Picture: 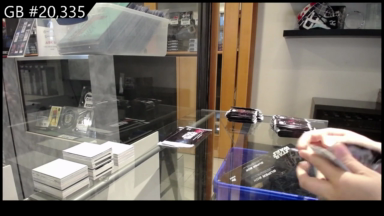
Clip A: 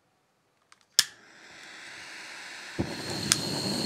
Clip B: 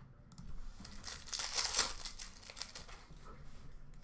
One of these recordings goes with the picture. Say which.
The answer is B